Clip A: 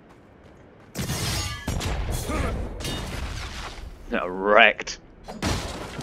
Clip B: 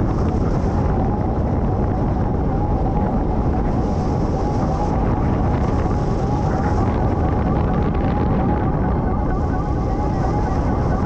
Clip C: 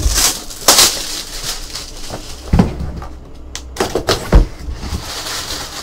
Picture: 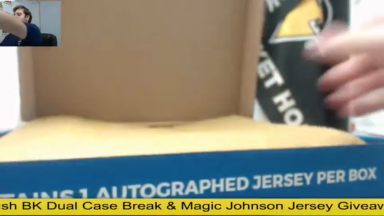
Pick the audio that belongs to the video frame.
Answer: C